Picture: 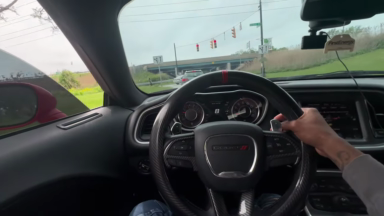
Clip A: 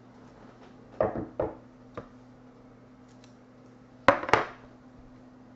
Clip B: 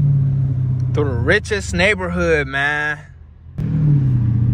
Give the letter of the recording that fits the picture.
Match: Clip B